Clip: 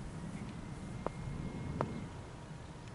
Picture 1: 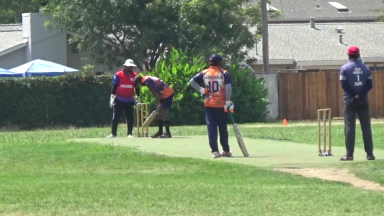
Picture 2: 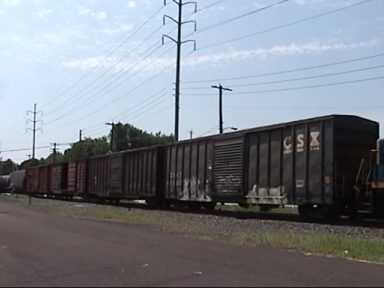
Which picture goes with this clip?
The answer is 1